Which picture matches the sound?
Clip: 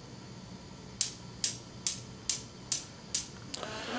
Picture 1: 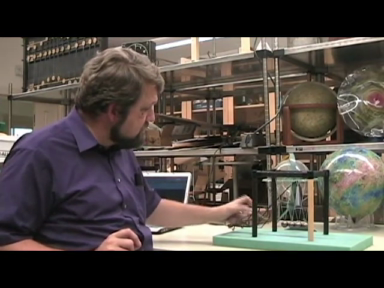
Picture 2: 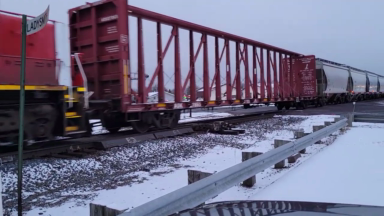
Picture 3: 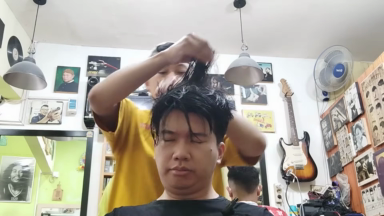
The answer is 1